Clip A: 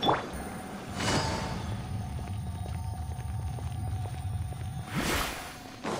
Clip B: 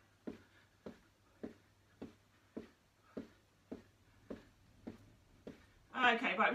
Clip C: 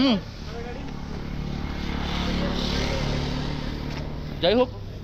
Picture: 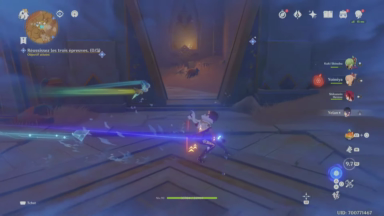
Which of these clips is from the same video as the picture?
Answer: A